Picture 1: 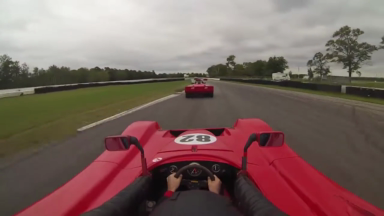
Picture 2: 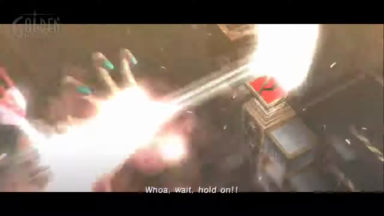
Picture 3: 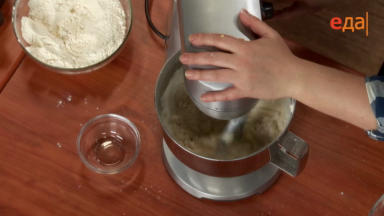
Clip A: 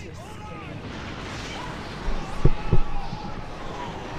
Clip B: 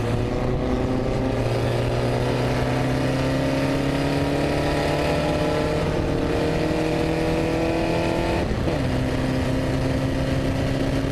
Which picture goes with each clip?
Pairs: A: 2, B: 1